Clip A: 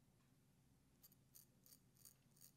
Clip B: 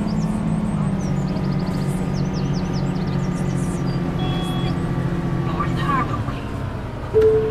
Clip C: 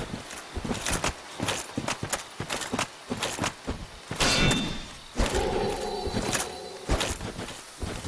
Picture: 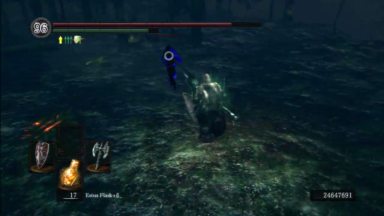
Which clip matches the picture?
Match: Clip C